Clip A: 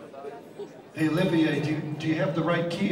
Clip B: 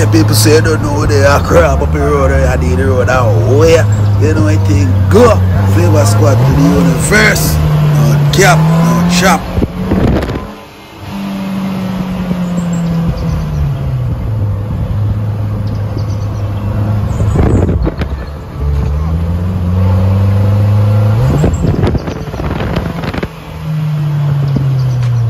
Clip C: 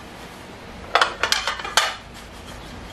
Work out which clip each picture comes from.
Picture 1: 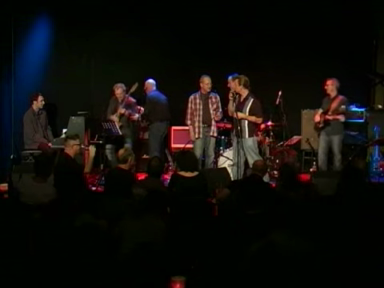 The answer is A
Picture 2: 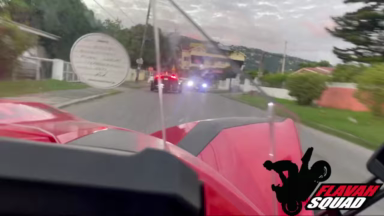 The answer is B